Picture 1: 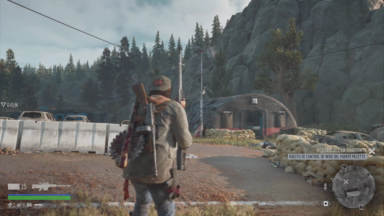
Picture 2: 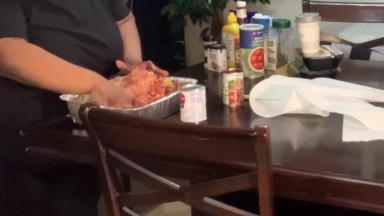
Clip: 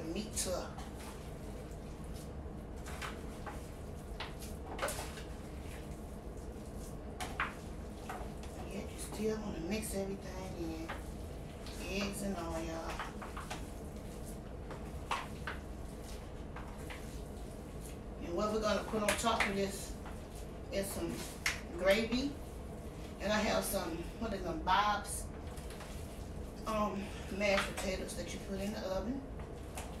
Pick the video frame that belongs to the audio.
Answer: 2